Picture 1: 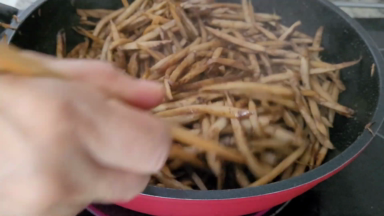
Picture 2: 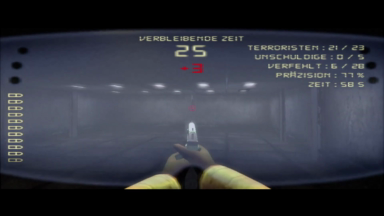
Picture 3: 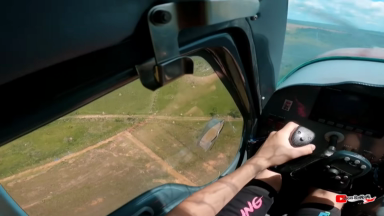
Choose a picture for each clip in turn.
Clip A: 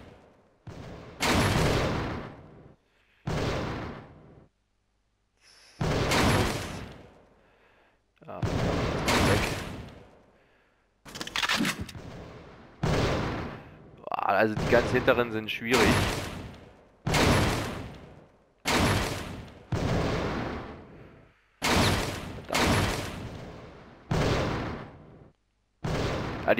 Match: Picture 2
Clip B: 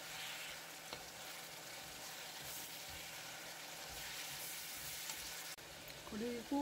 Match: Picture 1